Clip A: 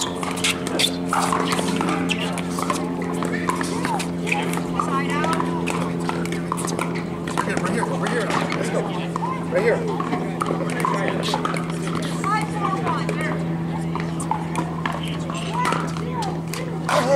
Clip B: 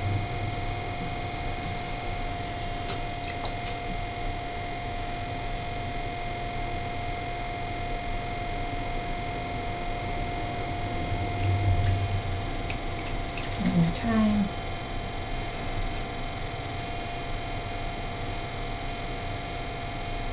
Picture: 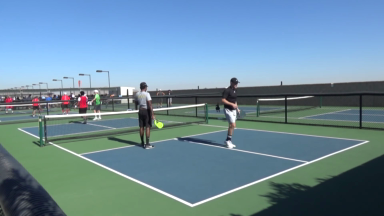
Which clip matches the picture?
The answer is A